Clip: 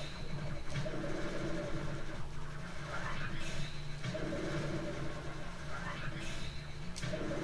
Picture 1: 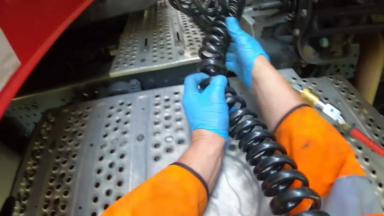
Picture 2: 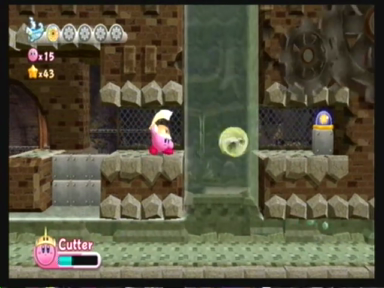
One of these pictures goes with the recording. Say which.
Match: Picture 2